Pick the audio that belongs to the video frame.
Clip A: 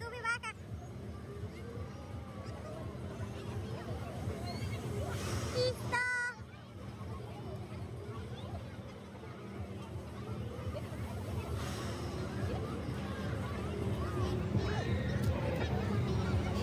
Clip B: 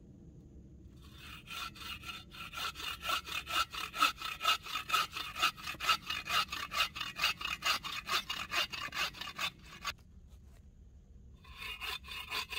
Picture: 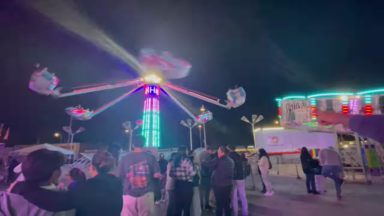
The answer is A